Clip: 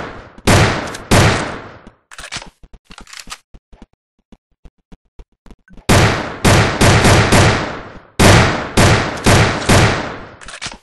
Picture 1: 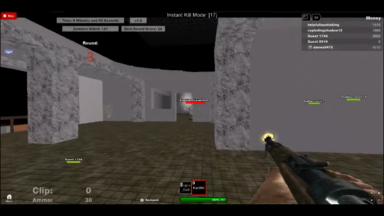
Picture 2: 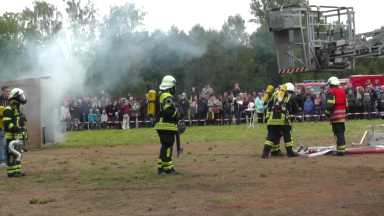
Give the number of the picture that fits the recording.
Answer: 1